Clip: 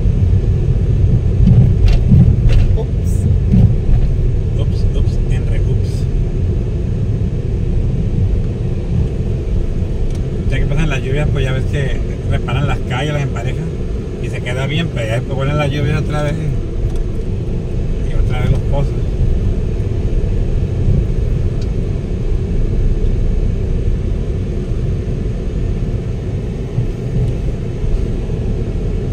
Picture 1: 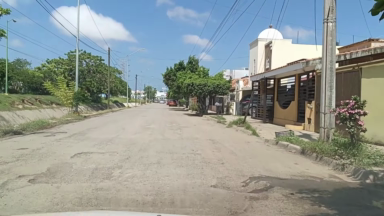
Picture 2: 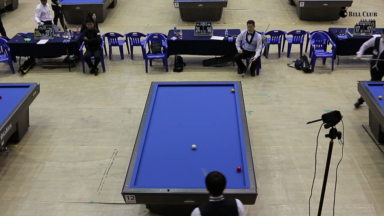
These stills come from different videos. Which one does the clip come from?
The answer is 1